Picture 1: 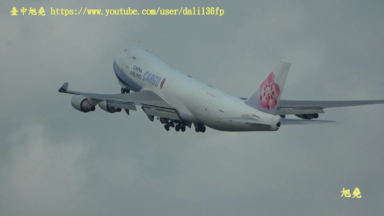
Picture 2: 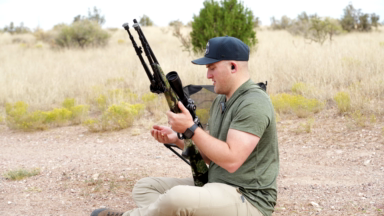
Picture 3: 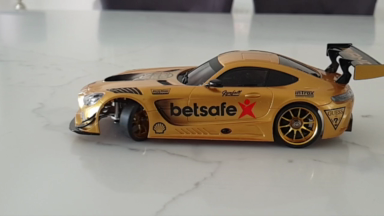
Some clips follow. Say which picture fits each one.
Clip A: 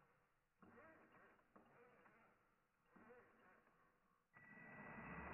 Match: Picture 3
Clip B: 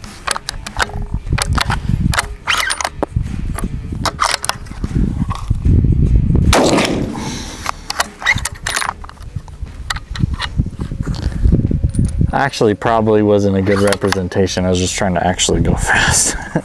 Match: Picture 2